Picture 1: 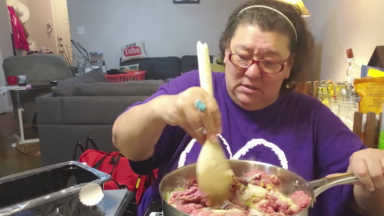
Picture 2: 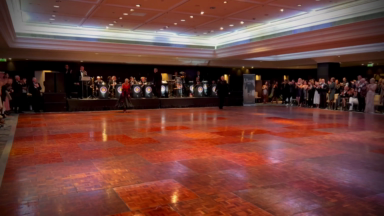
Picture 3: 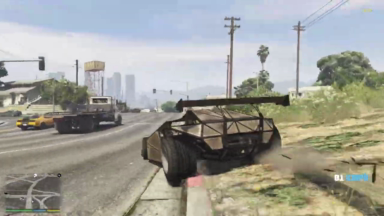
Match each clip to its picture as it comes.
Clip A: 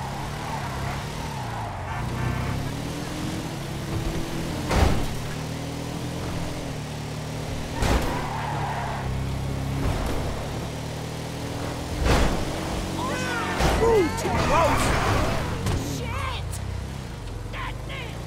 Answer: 3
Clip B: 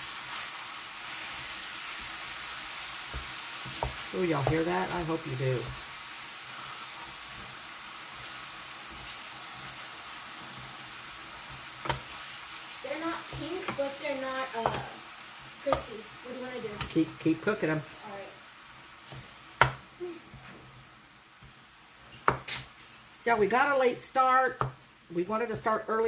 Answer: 1